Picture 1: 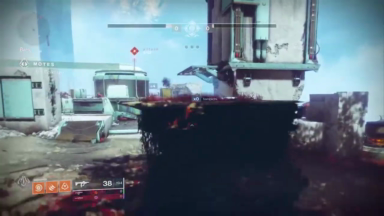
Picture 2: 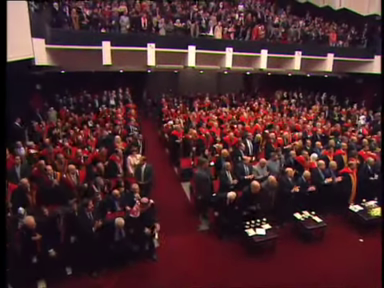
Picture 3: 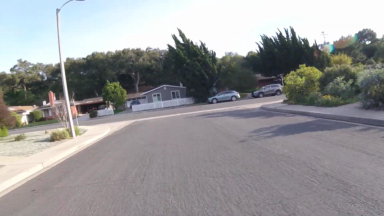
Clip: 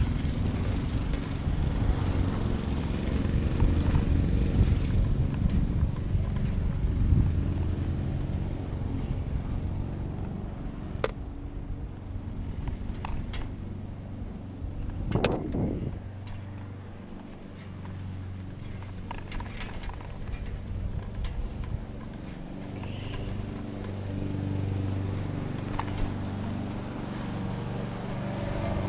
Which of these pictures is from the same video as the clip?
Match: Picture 3